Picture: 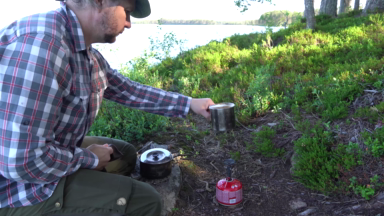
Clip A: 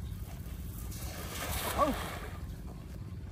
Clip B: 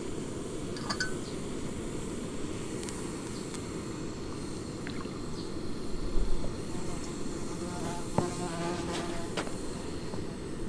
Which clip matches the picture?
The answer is B